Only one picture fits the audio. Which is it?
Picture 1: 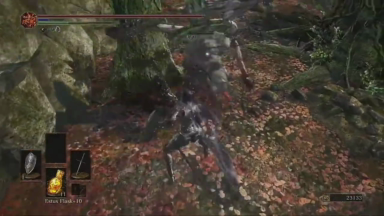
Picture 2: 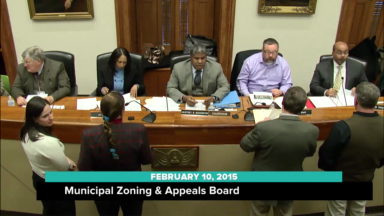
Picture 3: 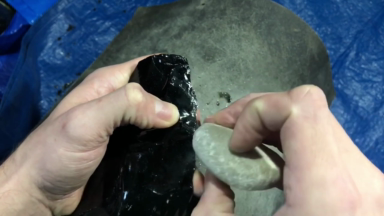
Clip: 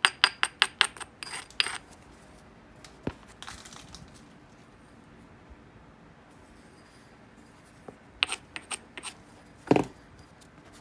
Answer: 3